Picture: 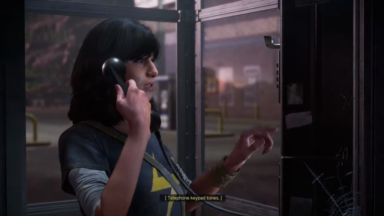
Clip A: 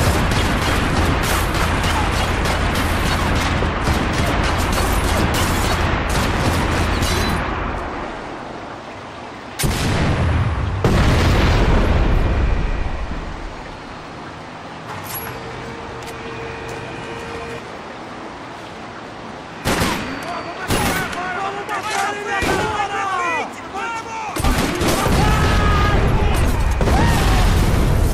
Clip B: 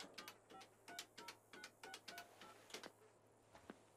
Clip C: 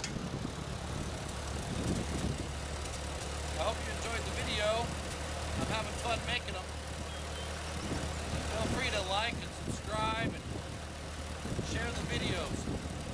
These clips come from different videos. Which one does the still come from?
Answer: B